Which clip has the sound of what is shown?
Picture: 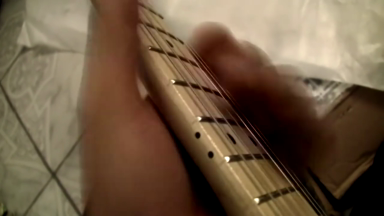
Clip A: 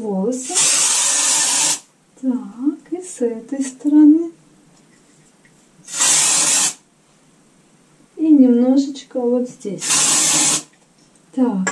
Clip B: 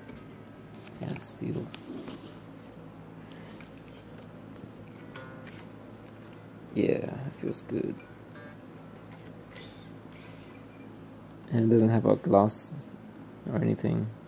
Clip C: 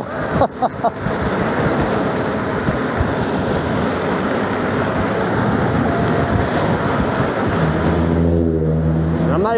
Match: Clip B